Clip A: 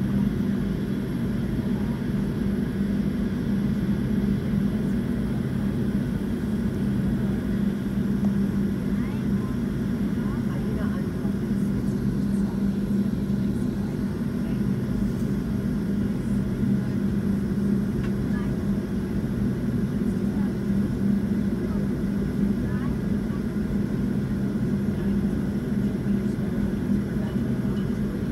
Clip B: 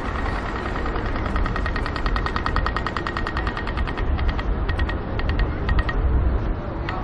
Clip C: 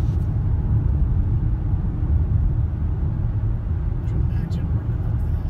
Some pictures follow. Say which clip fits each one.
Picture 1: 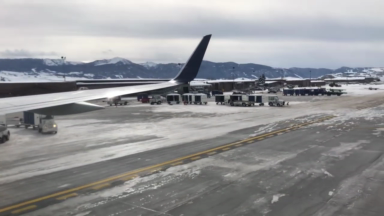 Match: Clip A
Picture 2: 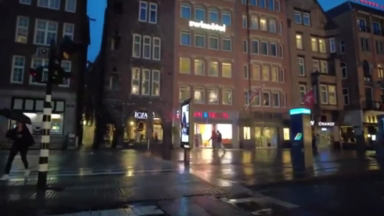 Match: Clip B